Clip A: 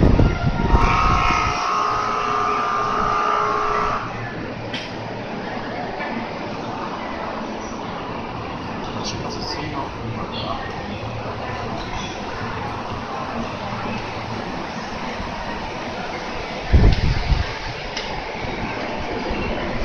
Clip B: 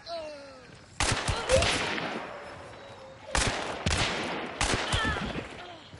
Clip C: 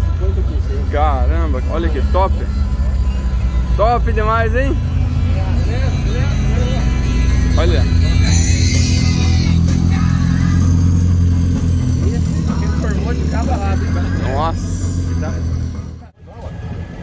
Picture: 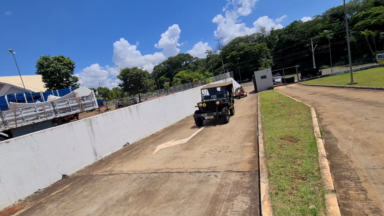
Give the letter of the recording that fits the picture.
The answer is C